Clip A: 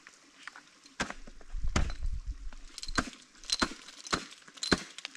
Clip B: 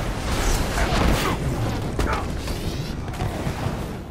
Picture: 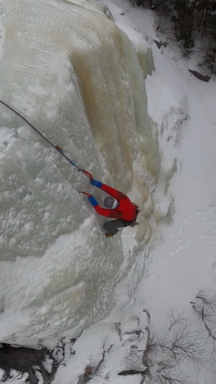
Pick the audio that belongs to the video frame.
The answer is A